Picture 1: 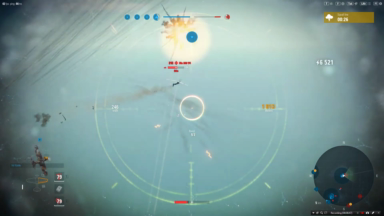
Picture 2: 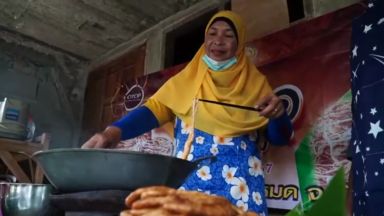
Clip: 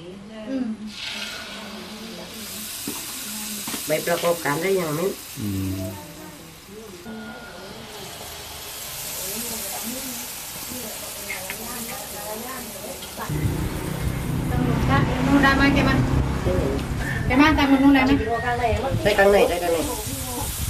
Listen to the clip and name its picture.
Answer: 2